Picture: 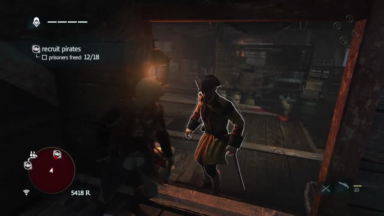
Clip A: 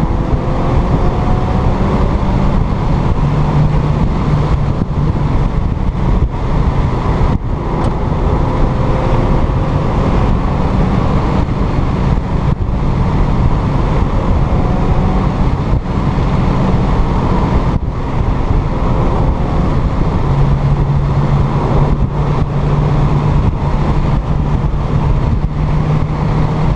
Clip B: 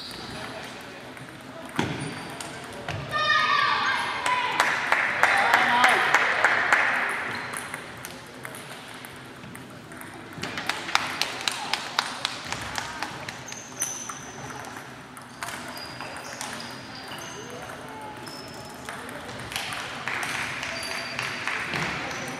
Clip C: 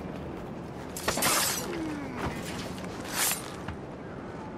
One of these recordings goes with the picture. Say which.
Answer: C